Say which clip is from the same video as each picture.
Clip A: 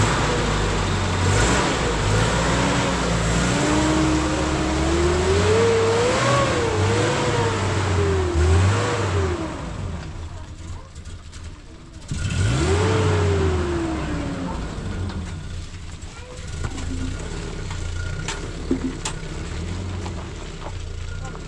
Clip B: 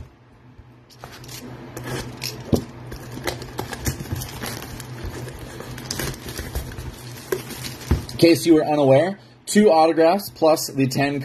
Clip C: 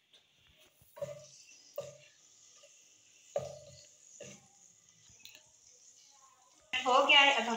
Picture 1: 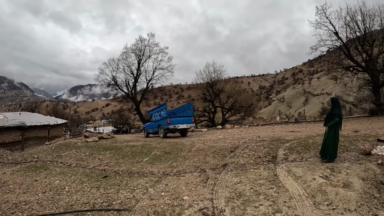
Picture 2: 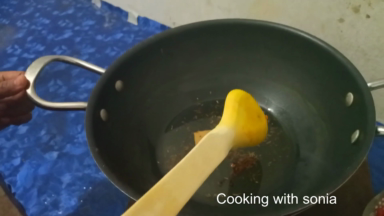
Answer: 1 A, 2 C